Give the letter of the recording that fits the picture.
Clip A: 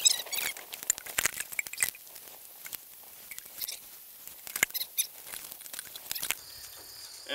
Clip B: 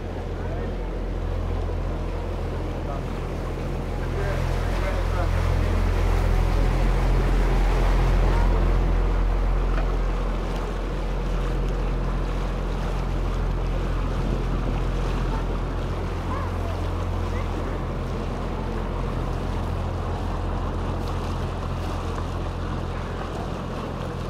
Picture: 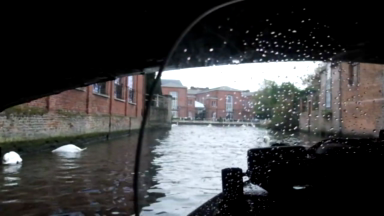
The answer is B